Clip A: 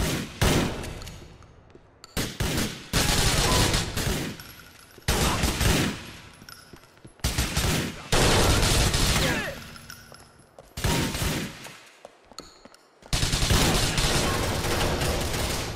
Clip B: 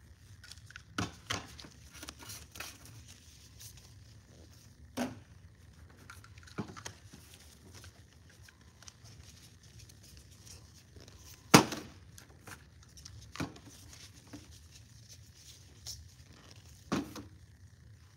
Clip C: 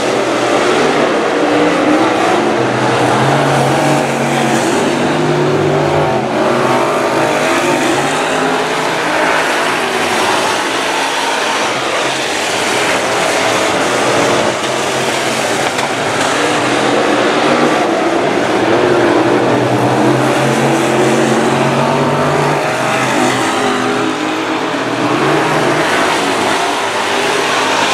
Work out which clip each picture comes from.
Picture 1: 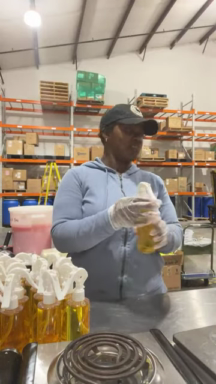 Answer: B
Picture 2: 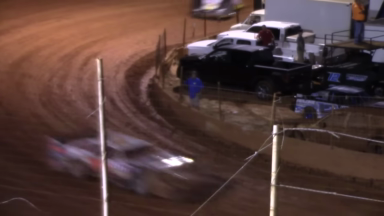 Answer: C